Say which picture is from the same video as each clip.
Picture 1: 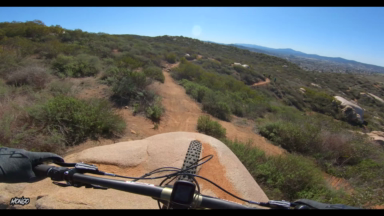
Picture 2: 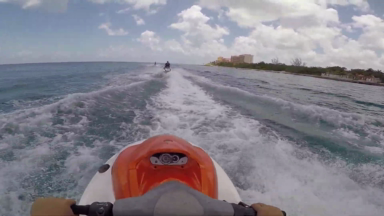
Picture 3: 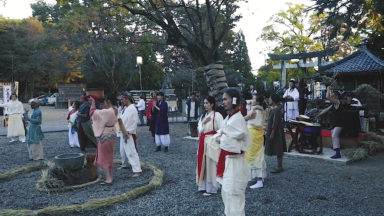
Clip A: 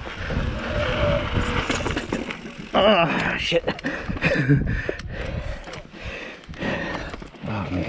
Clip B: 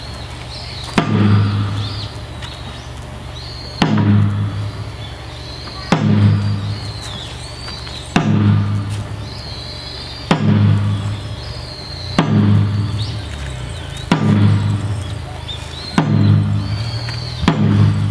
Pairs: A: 1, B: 3